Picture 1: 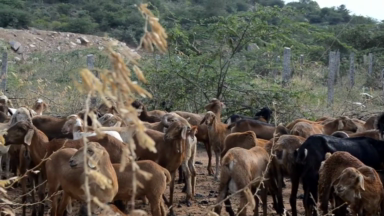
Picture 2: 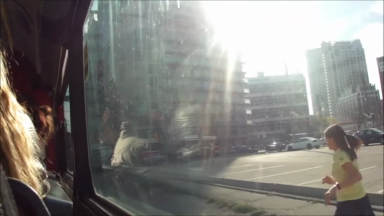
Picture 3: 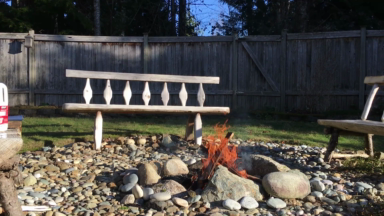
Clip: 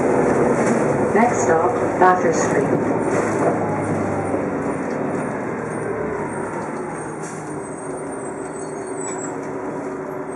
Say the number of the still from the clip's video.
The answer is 2